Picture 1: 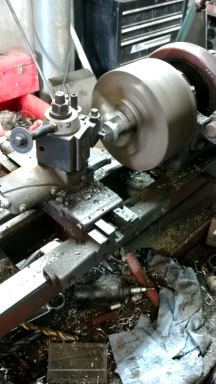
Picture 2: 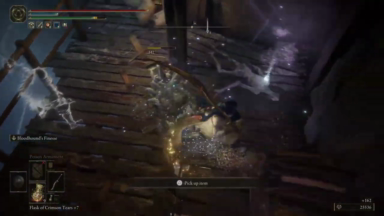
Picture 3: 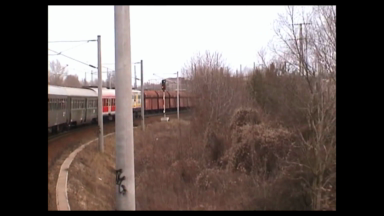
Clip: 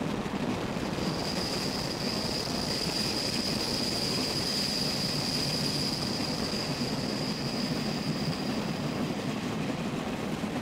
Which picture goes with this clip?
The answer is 3